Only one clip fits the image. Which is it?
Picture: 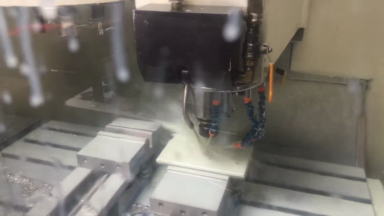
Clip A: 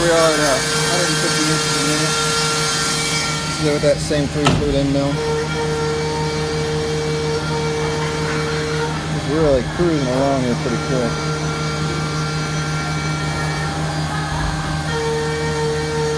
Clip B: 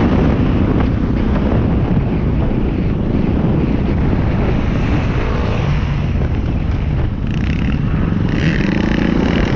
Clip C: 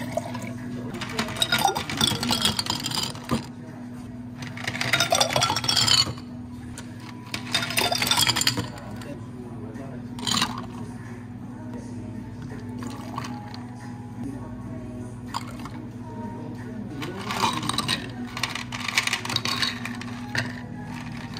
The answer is A